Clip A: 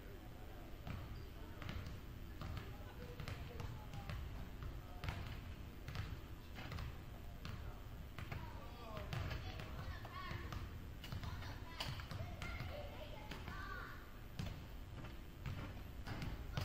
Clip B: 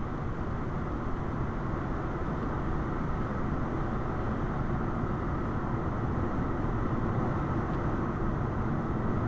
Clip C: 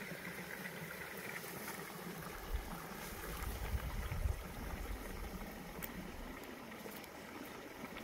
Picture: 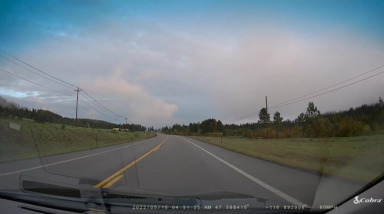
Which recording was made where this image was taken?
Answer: B